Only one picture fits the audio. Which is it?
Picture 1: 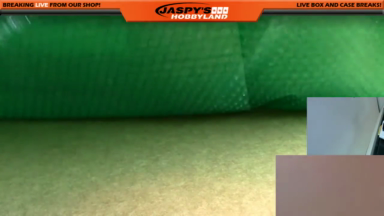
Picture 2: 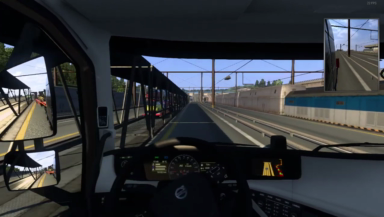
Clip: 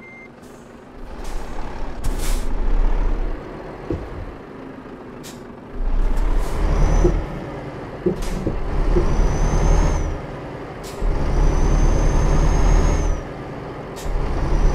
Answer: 2